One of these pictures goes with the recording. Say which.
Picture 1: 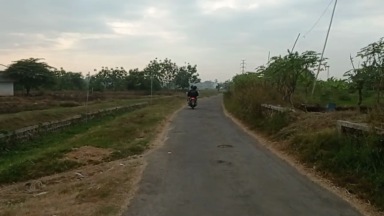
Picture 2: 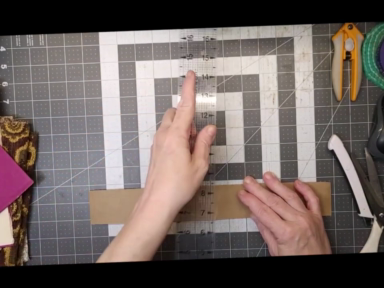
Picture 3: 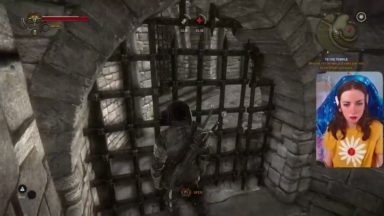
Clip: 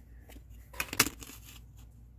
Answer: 2